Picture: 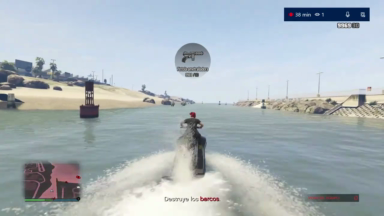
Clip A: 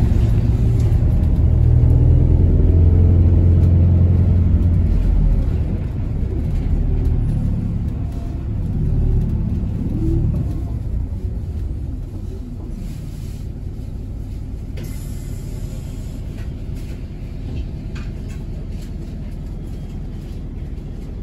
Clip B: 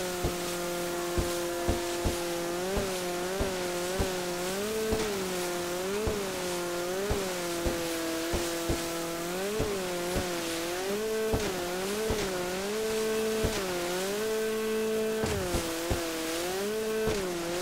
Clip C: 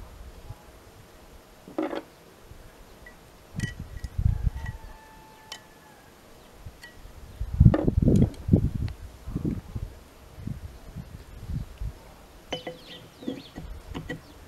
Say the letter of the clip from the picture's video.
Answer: B